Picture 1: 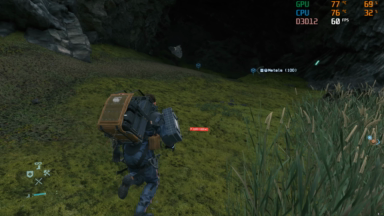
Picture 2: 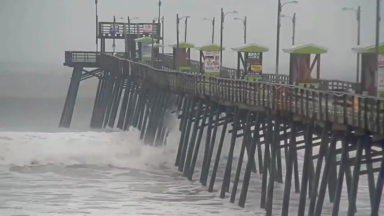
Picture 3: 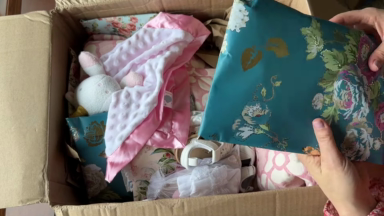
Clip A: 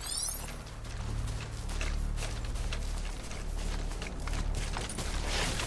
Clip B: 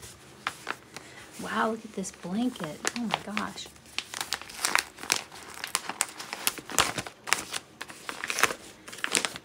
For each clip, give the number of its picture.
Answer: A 1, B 3